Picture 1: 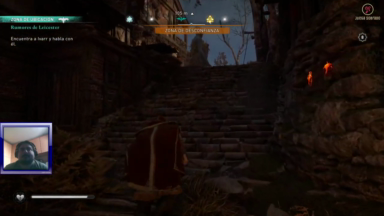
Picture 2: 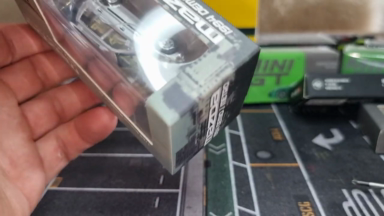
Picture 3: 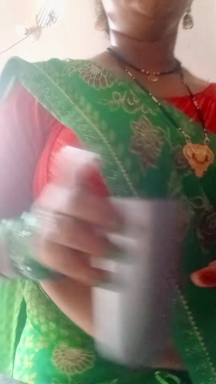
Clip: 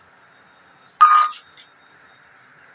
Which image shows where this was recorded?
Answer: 3